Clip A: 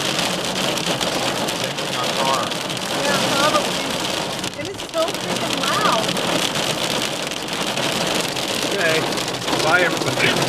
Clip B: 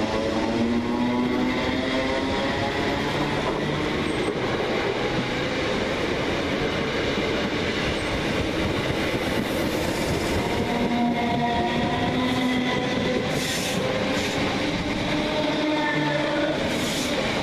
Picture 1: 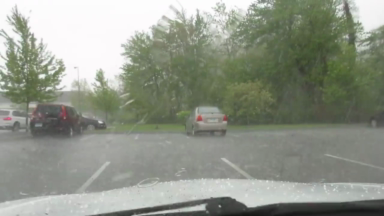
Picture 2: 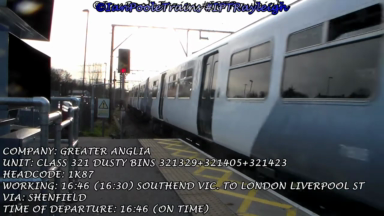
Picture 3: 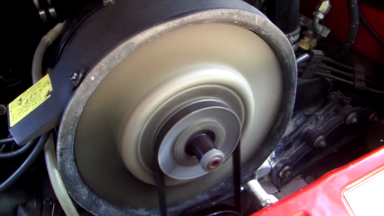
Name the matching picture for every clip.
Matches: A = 1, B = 2